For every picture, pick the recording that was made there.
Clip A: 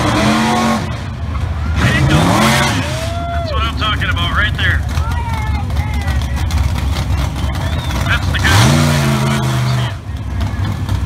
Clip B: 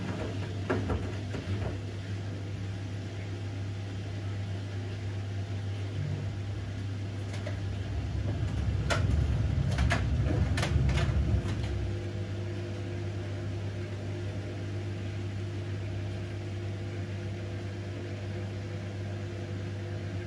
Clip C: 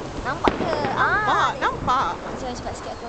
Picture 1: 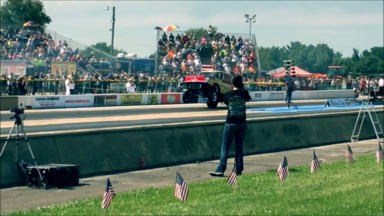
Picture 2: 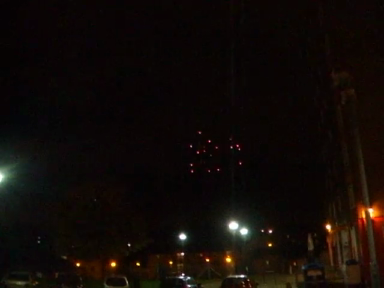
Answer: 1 A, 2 C